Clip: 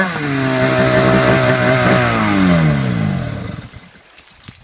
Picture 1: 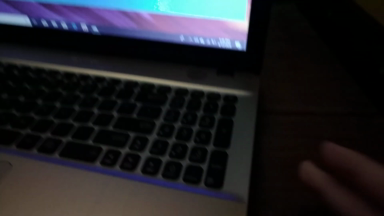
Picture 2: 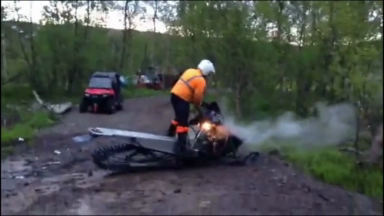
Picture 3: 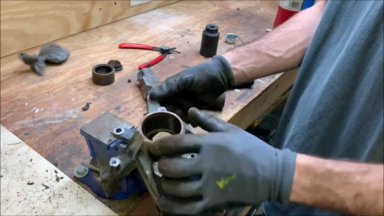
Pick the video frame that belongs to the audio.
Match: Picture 2